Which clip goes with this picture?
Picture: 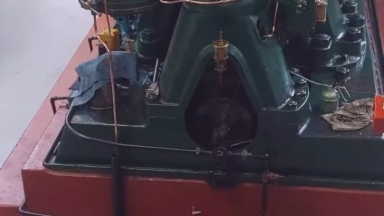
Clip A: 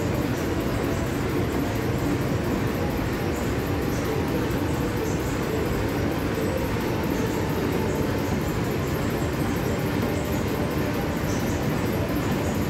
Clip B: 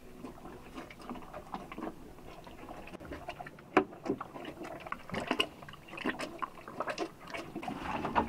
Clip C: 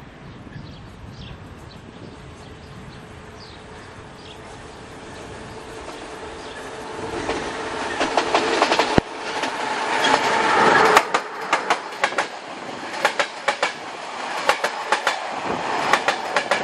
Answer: A